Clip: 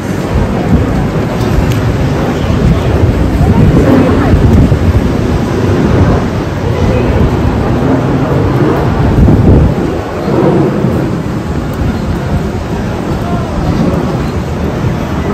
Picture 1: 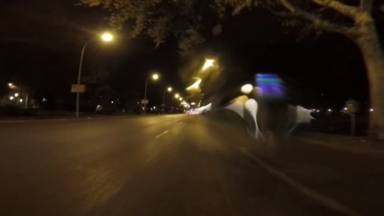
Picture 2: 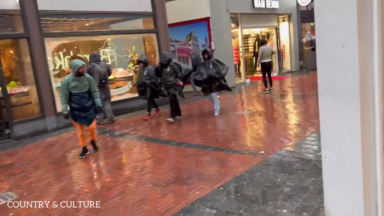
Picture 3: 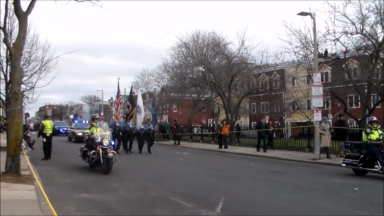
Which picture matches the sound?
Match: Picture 2